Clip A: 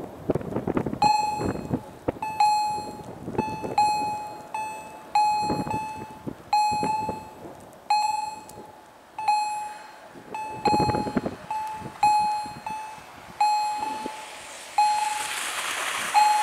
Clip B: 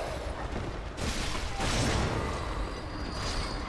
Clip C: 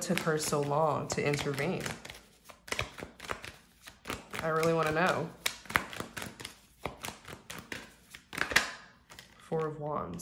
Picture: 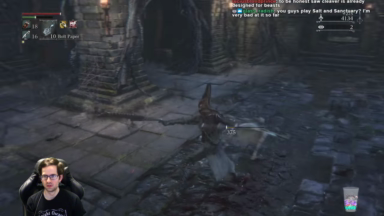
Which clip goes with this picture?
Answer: B